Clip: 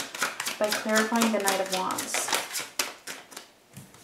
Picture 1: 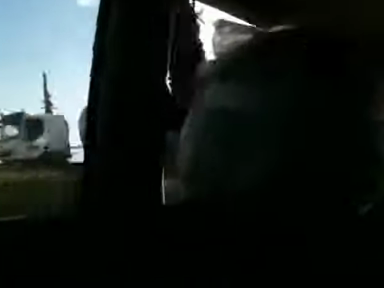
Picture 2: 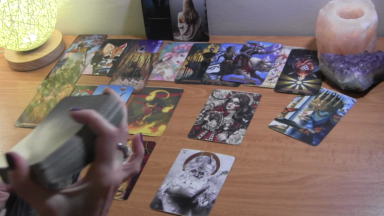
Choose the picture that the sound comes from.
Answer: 2